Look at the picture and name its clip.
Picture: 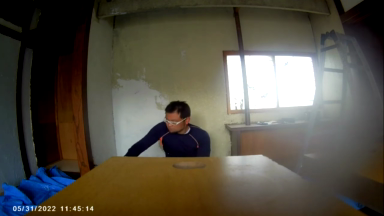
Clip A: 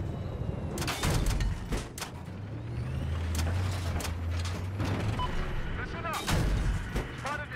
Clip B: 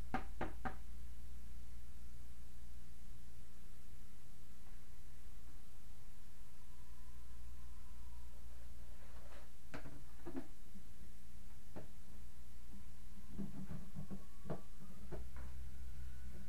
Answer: B